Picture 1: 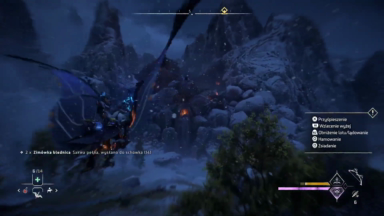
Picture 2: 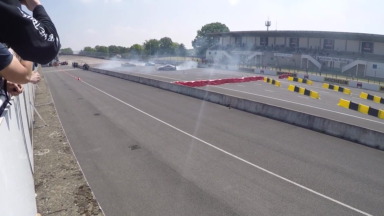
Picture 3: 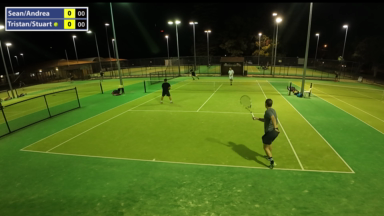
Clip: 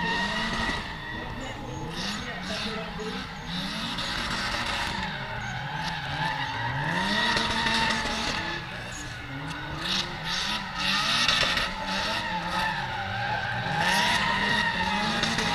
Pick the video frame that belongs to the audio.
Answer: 2